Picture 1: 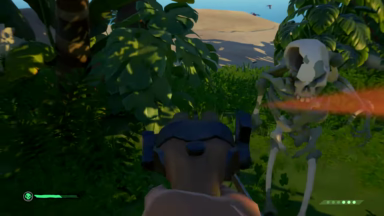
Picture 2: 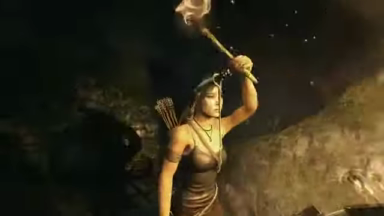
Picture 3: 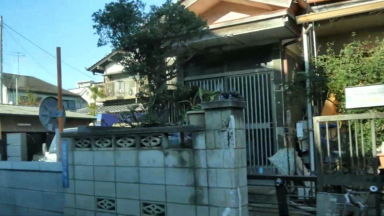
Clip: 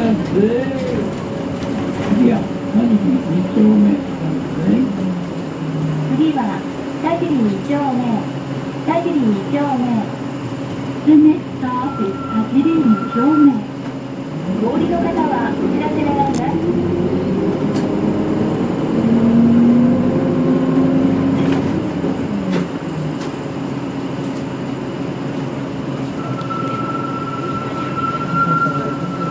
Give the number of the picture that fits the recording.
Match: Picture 3